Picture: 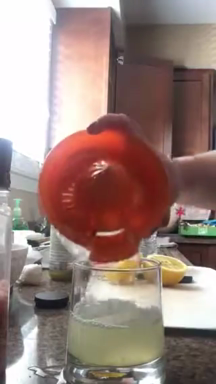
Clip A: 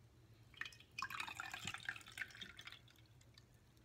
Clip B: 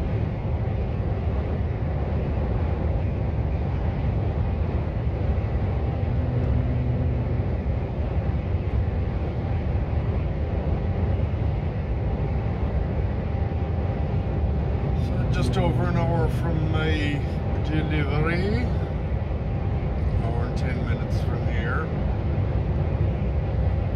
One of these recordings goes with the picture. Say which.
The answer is A